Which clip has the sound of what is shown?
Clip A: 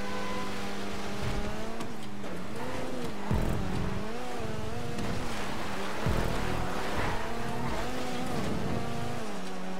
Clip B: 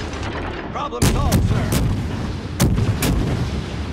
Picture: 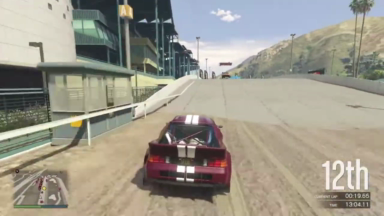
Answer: A